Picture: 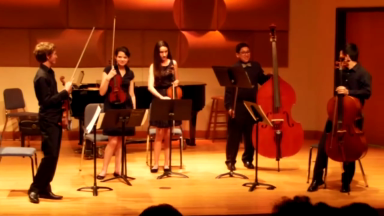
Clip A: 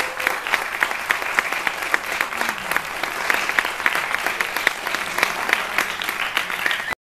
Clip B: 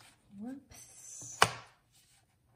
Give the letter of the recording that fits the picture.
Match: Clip A